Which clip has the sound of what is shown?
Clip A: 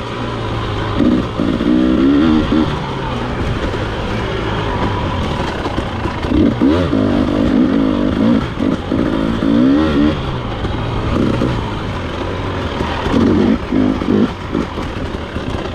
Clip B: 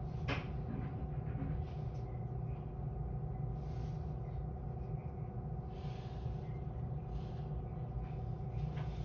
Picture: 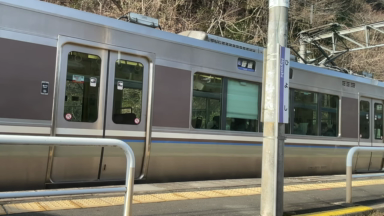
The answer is B